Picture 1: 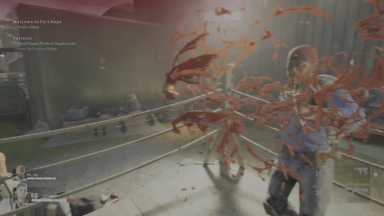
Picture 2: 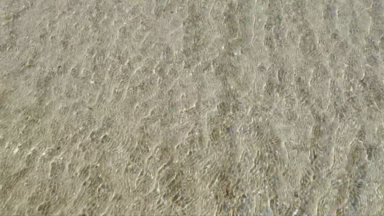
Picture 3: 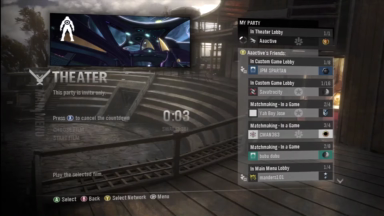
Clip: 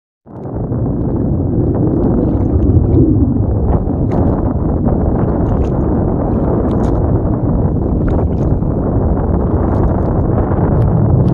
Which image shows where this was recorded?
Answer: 2